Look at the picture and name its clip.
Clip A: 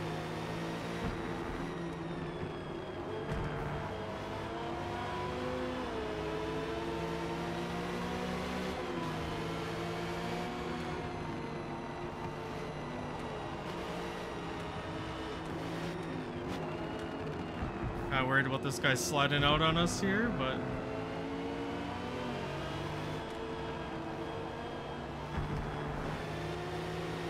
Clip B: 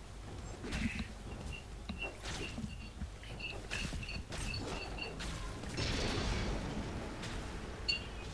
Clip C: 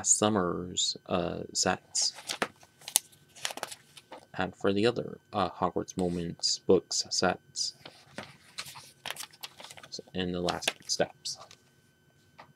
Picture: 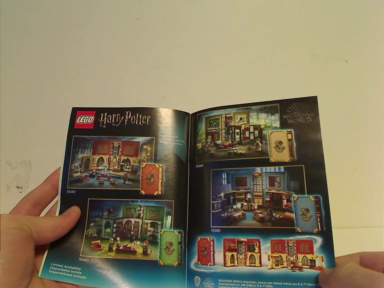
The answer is C